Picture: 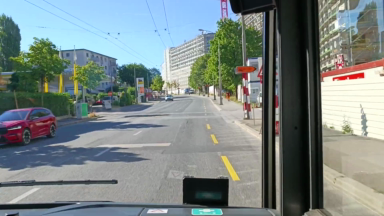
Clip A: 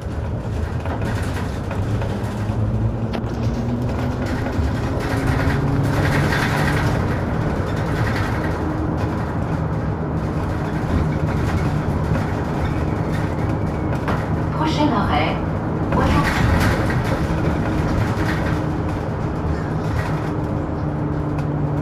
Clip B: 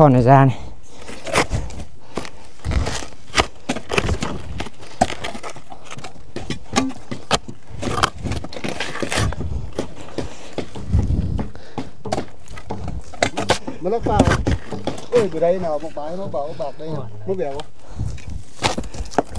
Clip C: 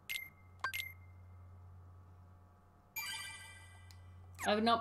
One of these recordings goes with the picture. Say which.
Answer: A